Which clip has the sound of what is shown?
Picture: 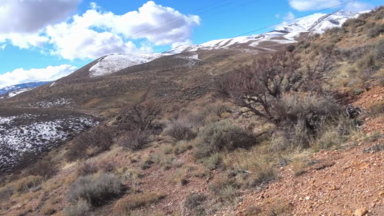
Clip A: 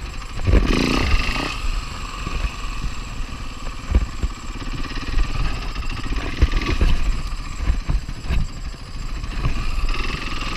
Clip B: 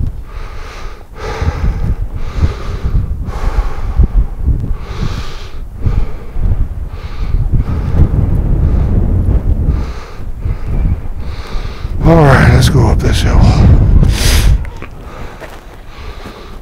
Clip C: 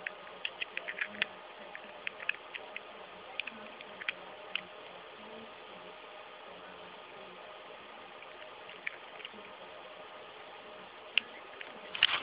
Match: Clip B